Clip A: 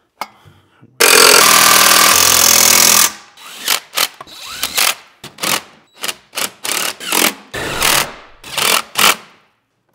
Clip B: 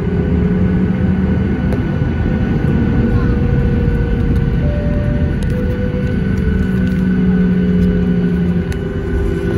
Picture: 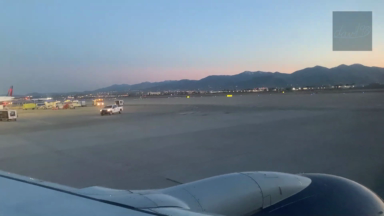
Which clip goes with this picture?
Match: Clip B